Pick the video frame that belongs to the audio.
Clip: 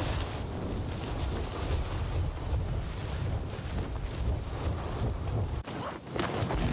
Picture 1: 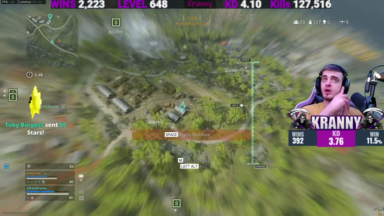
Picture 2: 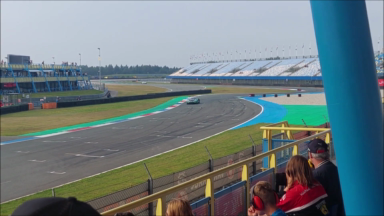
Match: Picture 1